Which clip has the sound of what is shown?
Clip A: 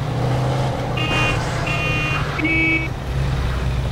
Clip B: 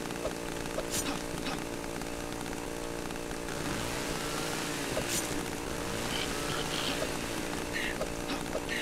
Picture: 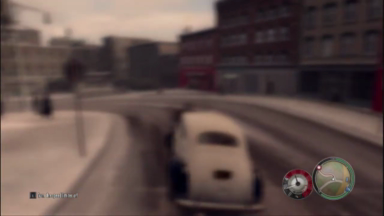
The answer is A